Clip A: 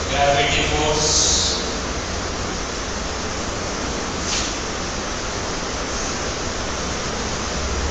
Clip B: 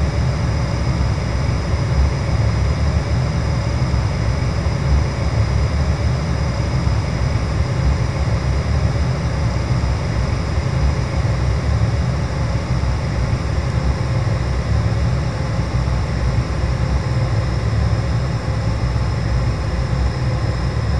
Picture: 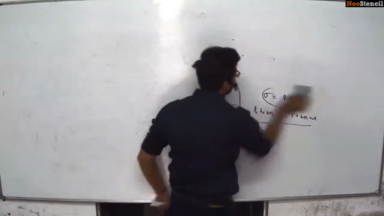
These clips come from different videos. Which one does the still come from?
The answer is A